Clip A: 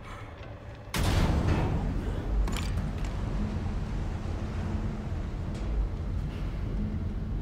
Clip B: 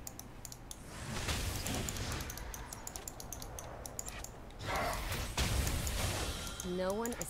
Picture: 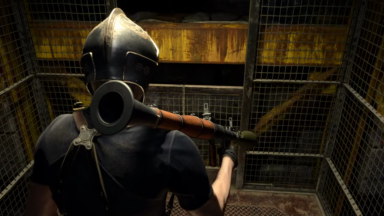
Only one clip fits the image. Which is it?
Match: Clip A